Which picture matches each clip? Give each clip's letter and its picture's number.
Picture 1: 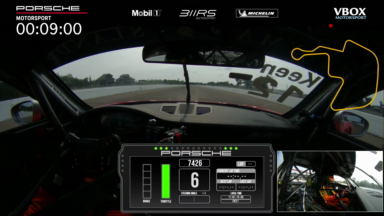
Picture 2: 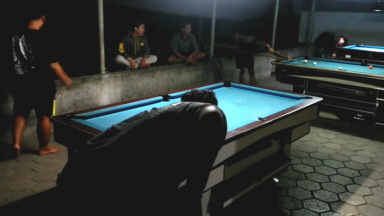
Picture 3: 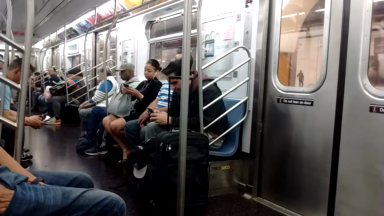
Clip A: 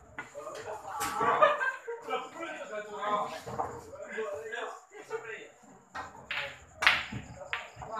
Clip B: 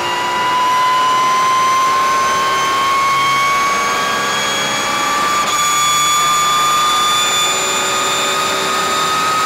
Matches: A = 2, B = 1